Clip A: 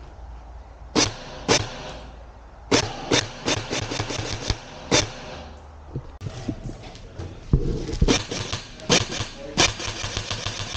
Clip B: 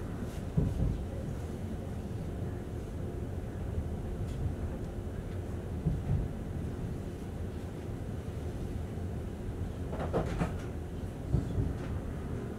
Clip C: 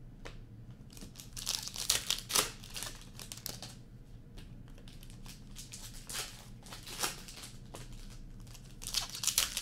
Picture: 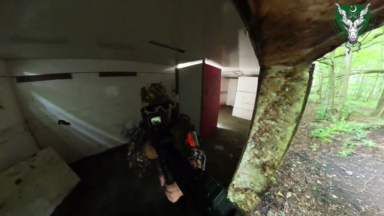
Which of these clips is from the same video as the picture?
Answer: A